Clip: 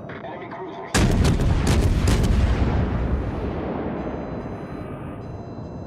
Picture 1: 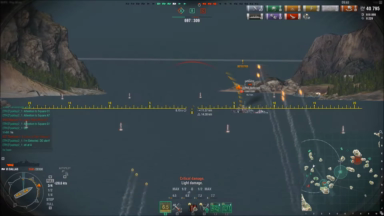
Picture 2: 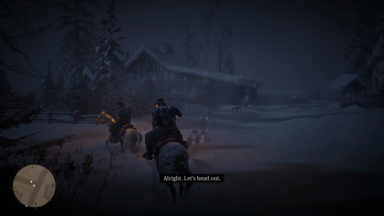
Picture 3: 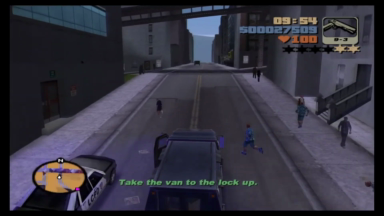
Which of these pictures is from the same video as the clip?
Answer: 1